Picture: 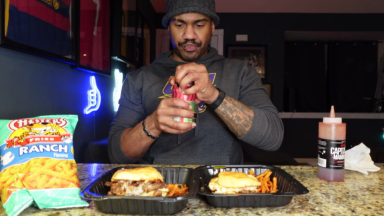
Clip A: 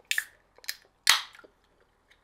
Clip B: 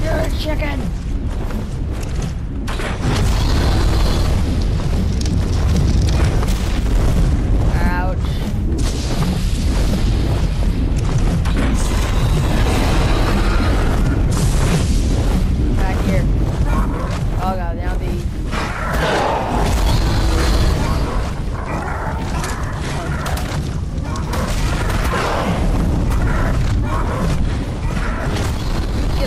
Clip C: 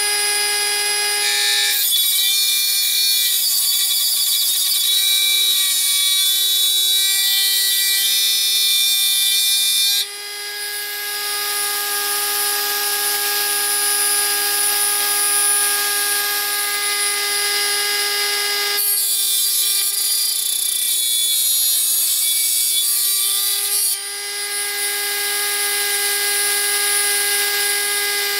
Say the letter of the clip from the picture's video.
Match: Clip A